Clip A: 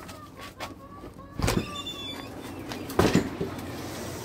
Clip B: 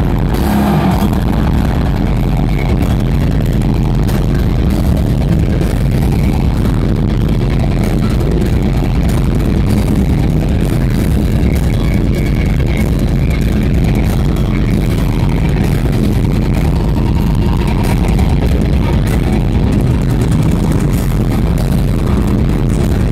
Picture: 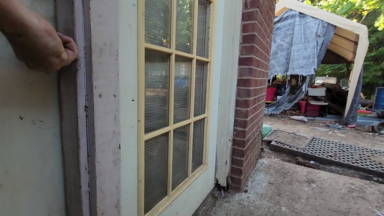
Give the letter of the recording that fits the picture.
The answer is A